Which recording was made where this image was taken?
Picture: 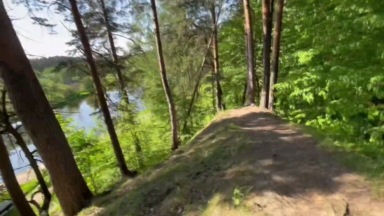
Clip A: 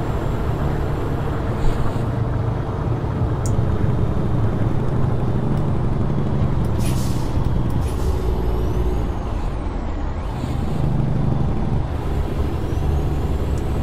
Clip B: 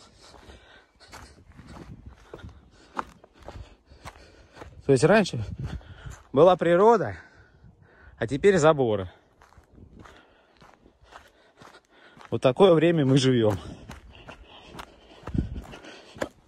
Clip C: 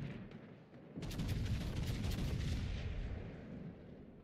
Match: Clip B